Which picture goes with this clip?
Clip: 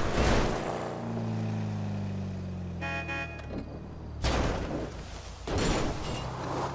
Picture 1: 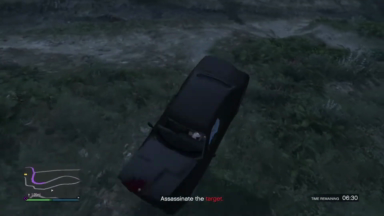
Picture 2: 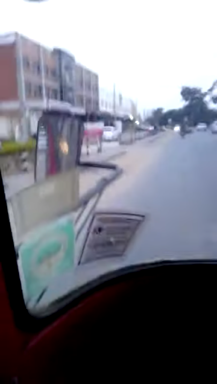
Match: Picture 1